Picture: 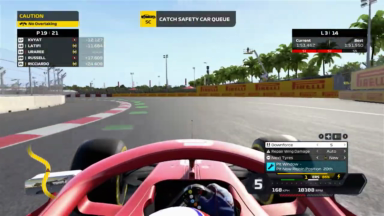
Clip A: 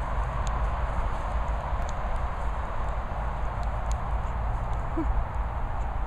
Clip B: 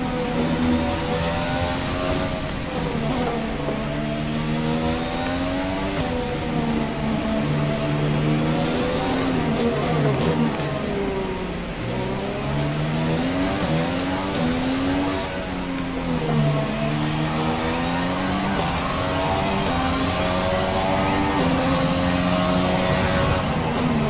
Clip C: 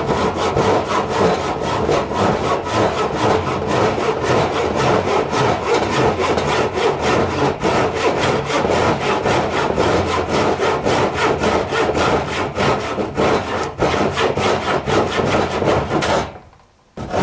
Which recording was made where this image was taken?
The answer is B